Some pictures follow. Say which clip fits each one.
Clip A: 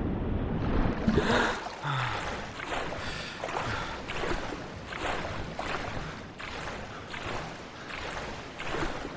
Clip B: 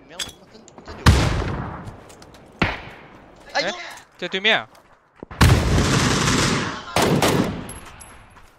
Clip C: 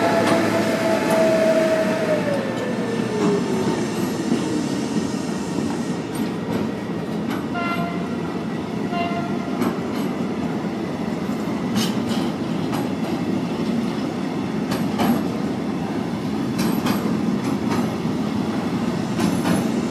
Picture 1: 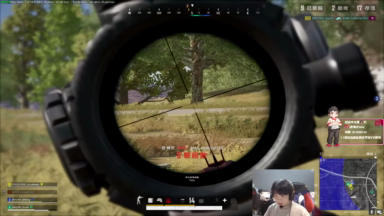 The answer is B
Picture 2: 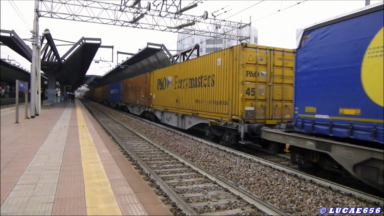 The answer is C